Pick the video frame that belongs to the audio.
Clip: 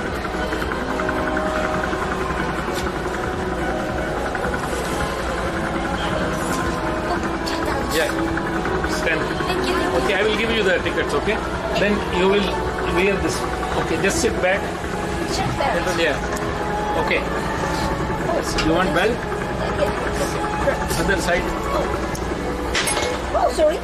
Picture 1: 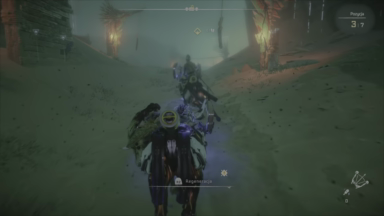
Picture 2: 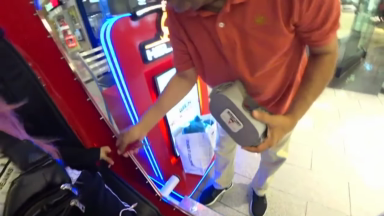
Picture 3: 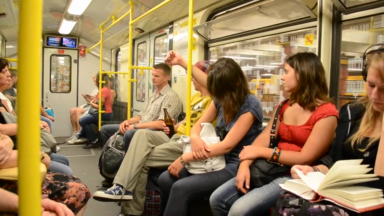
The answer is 2